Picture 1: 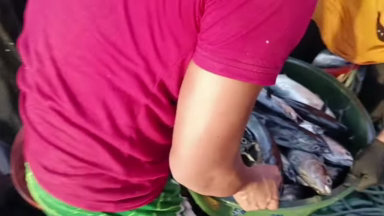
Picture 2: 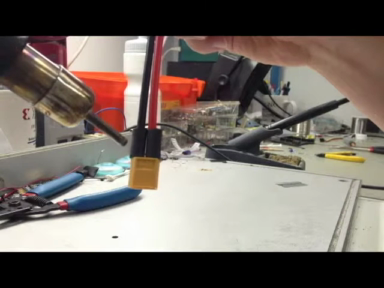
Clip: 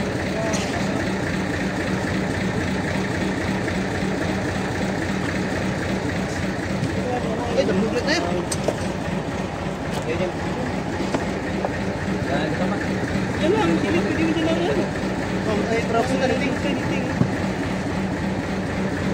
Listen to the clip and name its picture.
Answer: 1